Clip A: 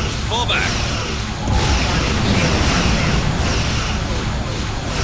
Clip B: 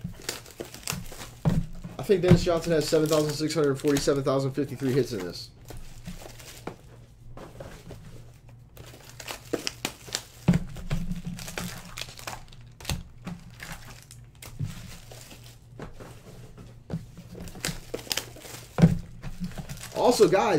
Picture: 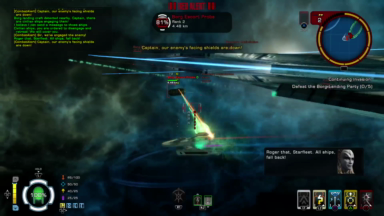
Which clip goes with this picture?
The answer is A